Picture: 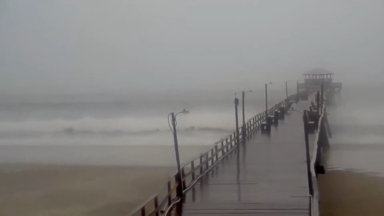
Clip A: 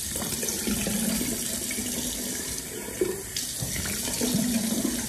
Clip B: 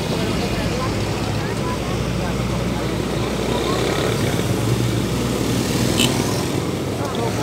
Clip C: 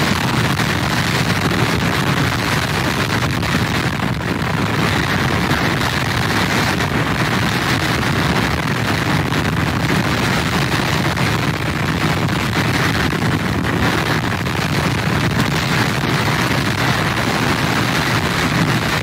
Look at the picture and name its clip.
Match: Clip C